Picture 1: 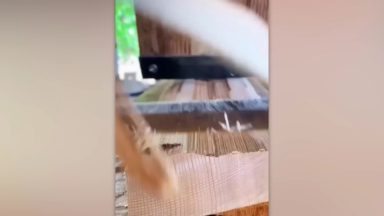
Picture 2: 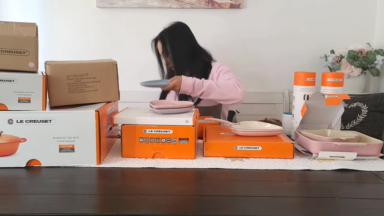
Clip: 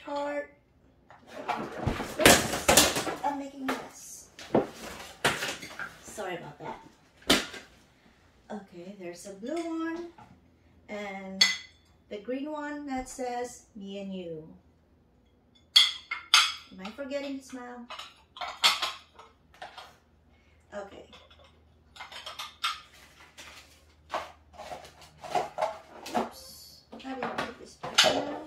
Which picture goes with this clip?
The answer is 2